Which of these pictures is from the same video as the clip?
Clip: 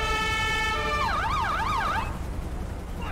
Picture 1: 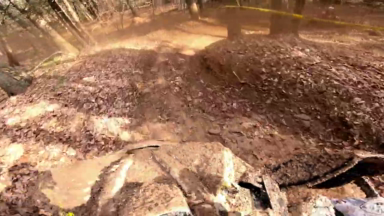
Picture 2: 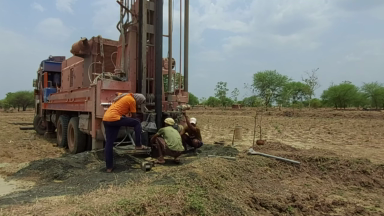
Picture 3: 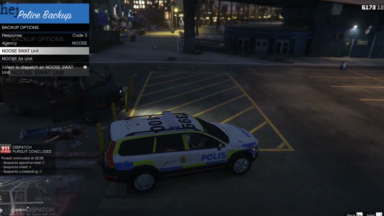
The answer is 3